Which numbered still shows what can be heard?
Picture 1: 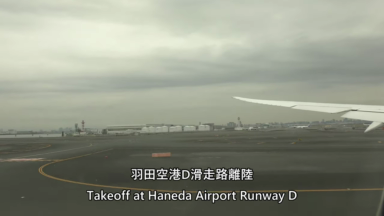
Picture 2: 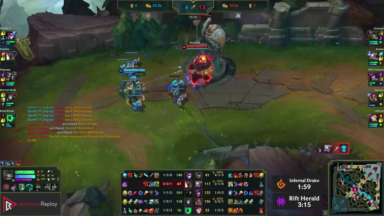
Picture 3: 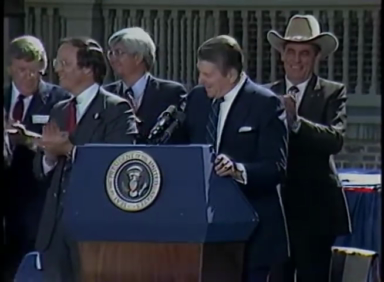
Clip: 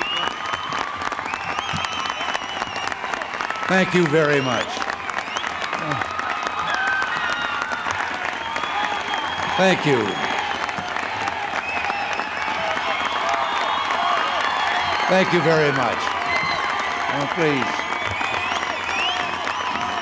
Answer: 3